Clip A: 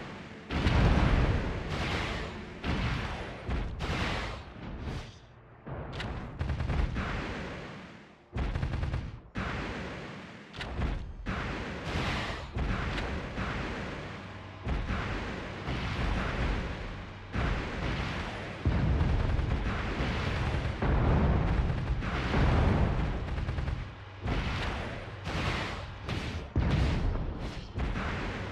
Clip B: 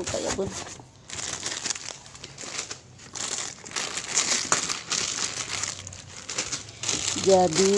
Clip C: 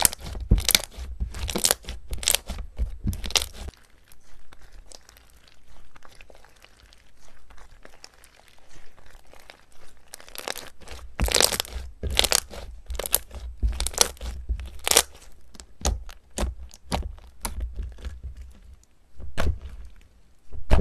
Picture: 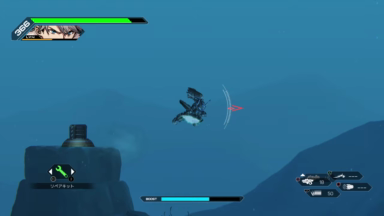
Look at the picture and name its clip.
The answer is A